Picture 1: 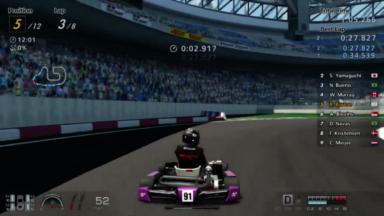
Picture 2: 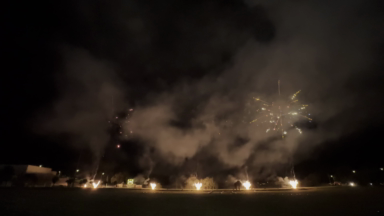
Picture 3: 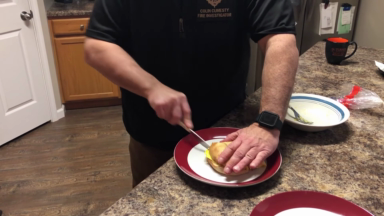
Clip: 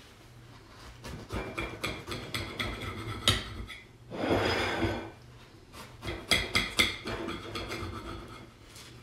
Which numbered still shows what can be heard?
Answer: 3